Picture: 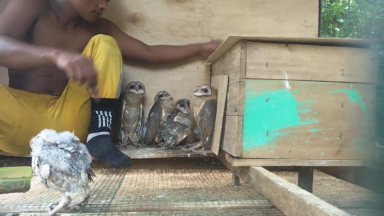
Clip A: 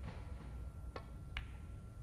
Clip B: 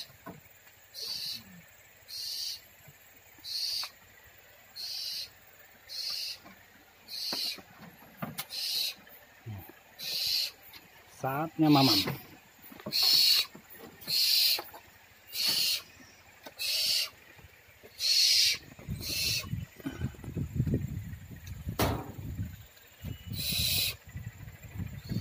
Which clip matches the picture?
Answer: B